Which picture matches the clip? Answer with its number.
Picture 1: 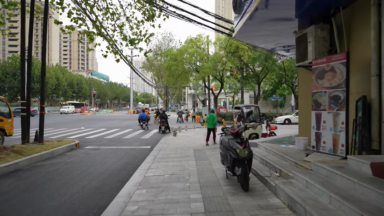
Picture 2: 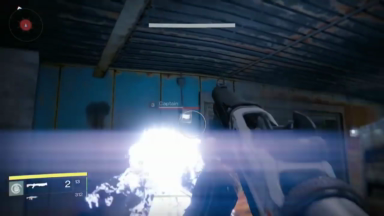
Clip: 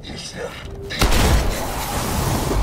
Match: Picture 2